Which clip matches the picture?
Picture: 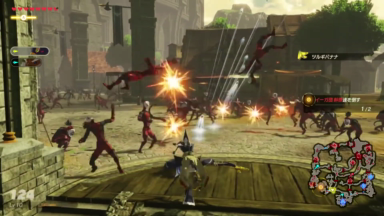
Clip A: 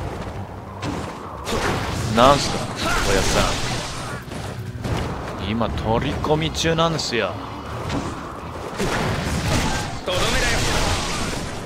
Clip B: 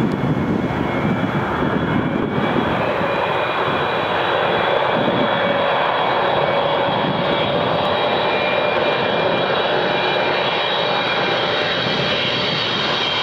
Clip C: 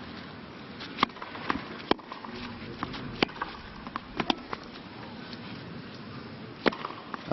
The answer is A